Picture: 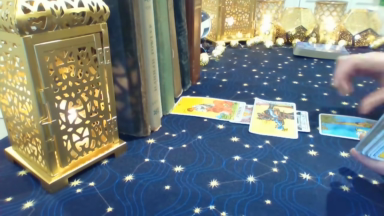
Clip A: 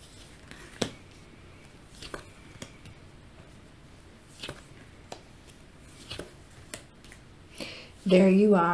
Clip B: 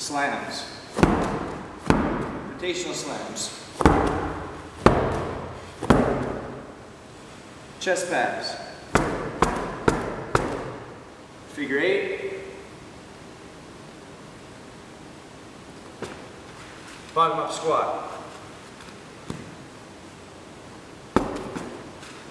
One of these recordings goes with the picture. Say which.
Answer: A